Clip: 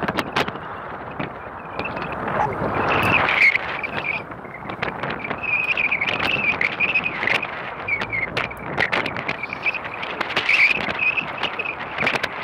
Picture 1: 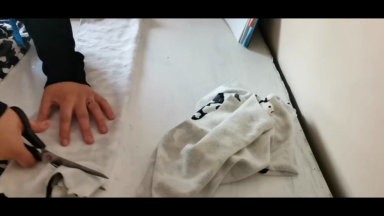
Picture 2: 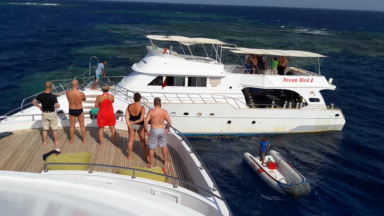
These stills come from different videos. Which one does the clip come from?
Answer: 2